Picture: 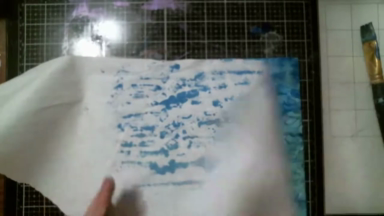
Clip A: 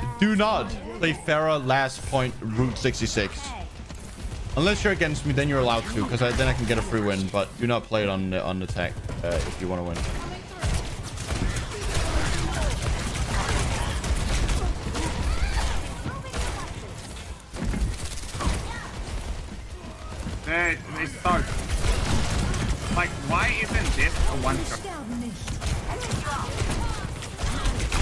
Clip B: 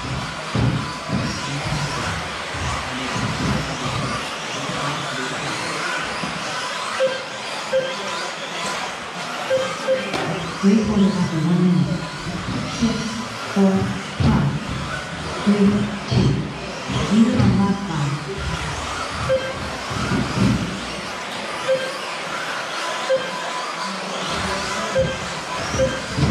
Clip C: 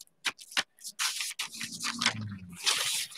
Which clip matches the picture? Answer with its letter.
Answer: C